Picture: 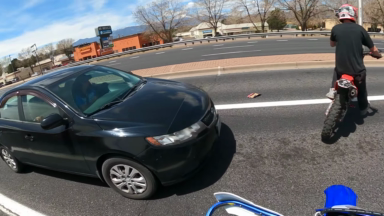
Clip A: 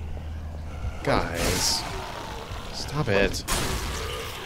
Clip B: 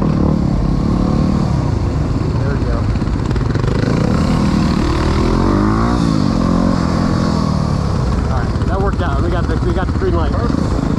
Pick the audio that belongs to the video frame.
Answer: B